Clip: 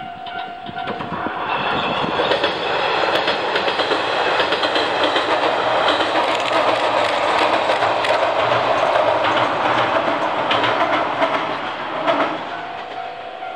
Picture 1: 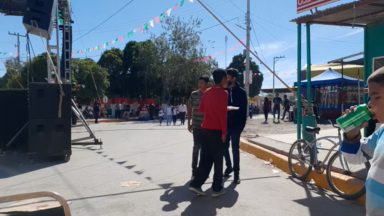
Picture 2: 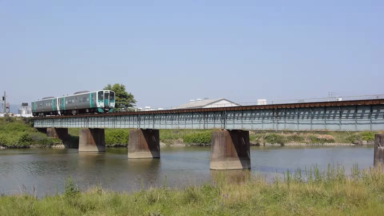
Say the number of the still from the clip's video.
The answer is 2